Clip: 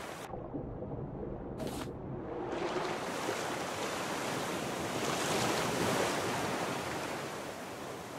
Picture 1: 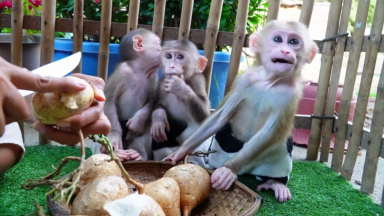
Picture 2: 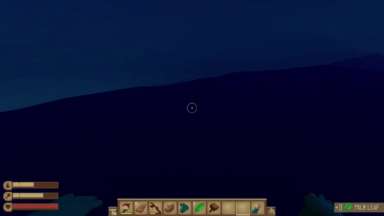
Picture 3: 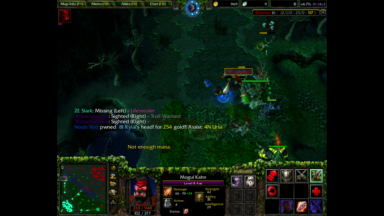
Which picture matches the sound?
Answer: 2